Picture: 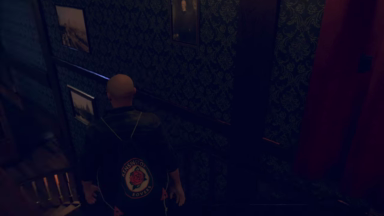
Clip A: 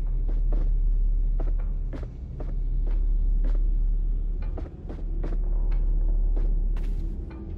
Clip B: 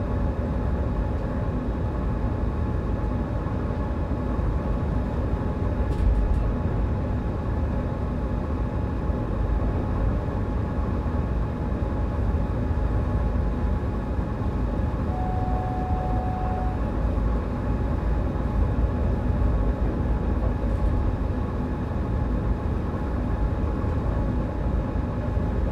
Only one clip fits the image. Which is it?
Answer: A